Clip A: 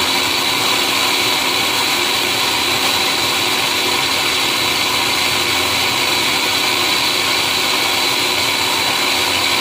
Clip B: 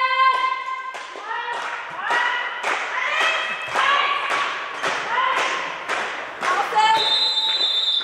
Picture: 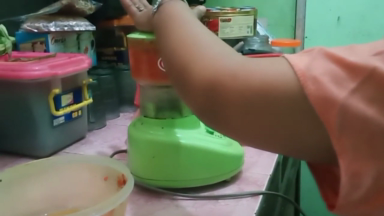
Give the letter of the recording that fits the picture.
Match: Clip A